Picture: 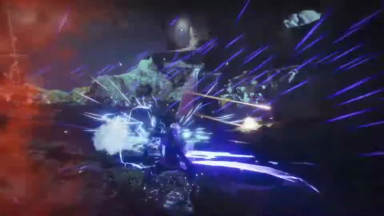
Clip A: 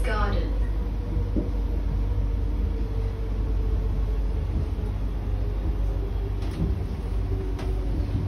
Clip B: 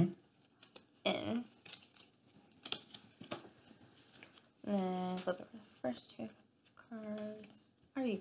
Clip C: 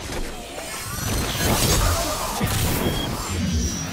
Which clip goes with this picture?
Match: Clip C